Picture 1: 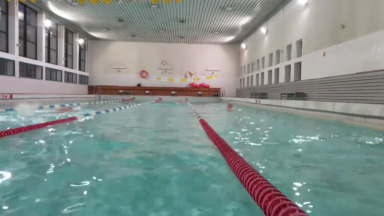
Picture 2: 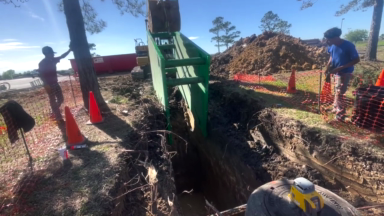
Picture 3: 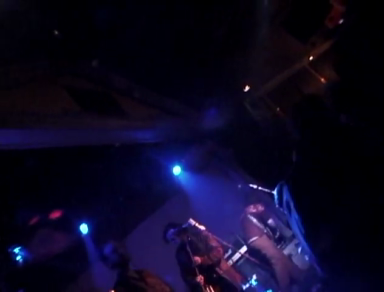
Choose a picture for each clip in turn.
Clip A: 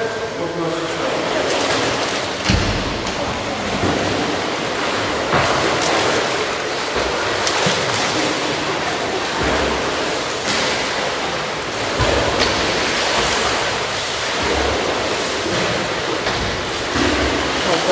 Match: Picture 1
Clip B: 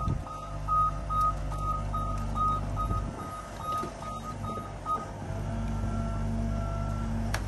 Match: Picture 2